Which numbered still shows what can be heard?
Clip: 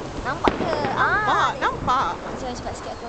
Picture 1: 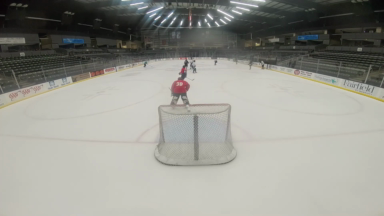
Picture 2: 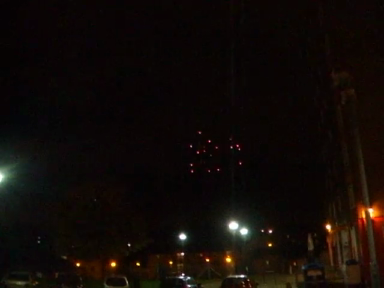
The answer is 2